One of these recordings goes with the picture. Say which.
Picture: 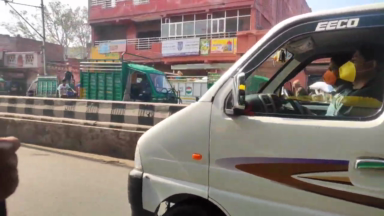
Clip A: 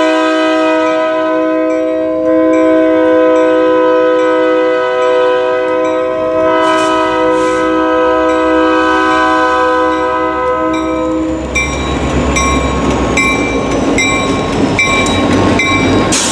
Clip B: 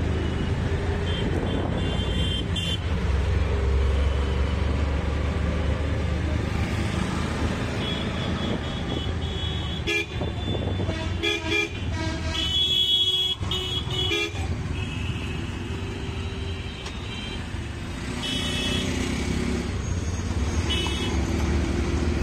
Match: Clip B